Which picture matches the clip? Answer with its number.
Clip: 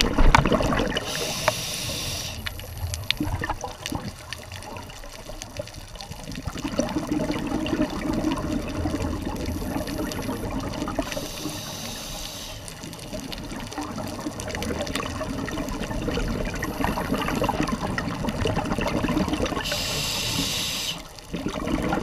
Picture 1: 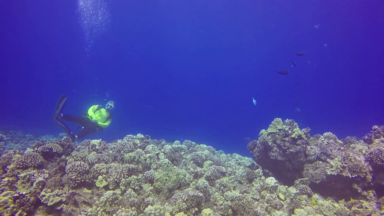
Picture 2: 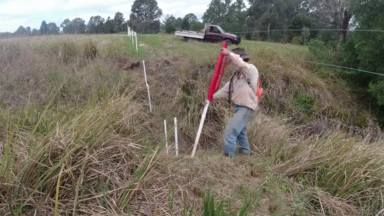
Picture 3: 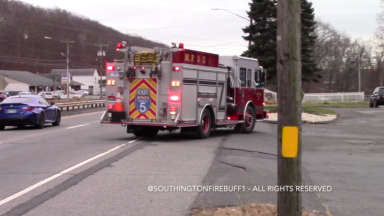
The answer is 1